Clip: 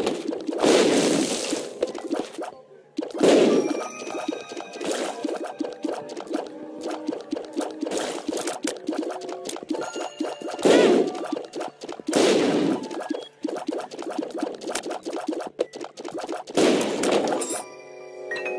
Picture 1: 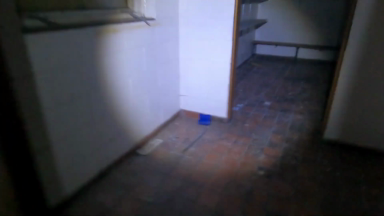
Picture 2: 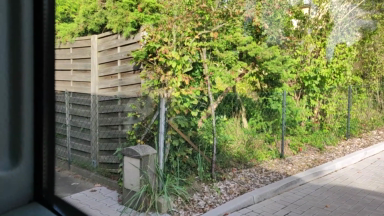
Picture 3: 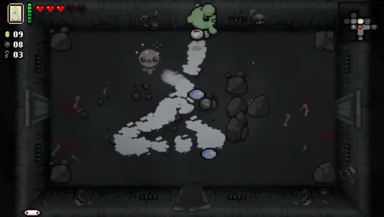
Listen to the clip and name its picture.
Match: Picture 3